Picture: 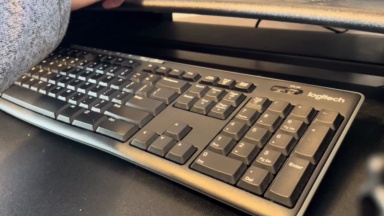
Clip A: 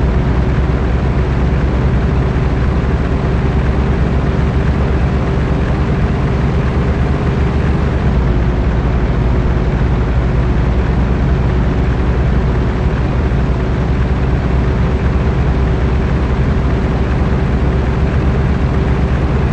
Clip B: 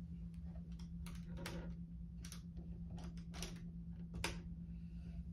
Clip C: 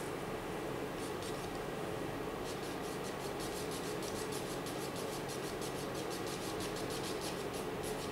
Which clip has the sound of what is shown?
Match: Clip B